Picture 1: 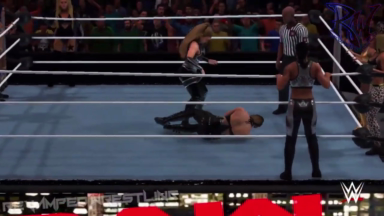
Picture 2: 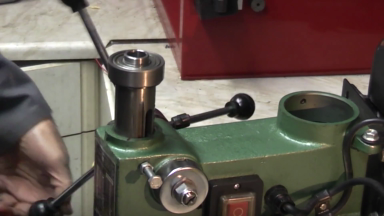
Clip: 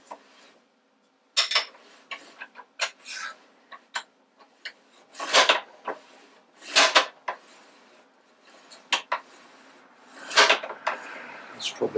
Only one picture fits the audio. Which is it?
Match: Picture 2